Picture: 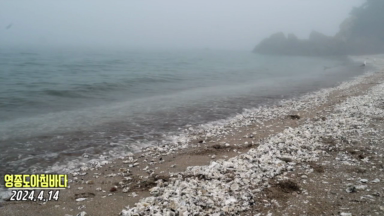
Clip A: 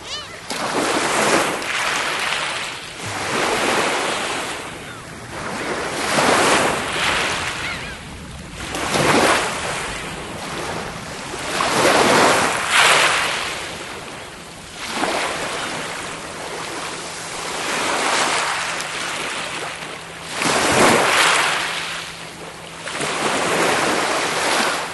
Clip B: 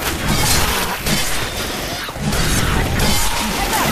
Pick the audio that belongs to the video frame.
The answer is A